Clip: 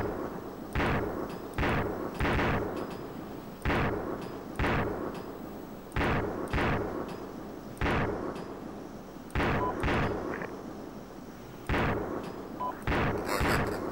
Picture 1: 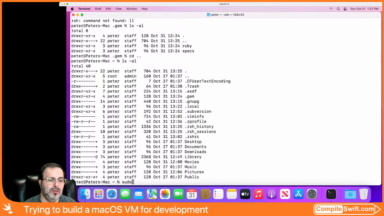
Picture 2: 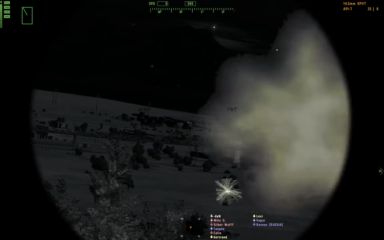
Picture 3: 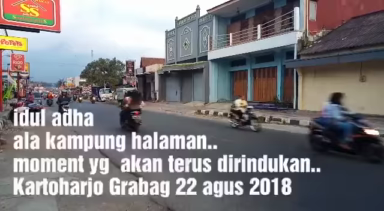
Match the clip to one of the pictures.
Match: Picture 2